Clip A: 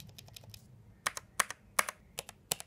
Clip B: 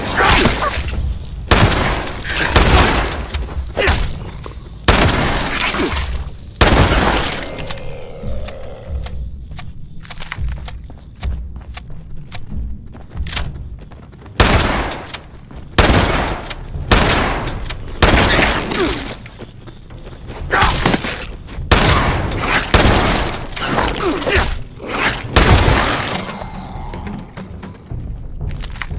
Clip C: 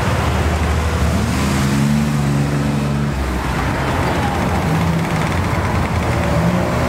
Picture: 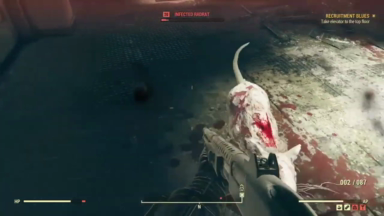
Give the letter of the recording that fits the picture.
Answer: B